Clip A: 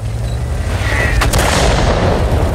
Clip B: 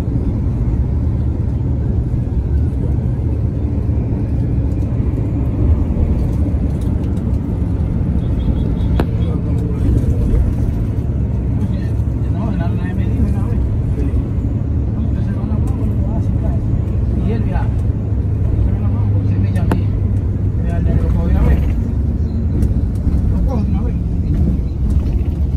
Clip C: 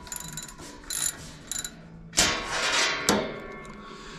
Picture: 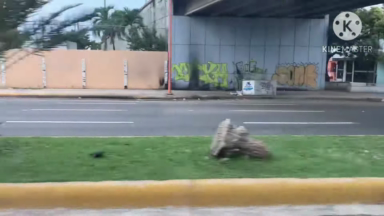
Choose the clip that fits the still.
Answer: B